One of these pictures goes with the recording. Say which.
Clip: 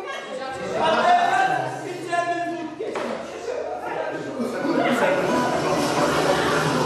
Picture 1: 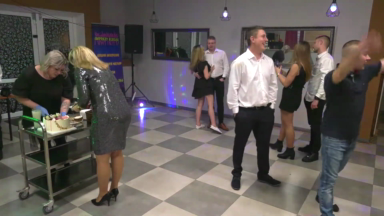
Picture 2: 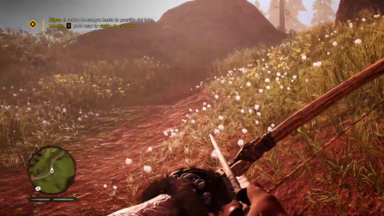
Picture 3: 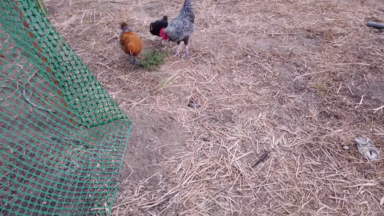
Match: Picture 1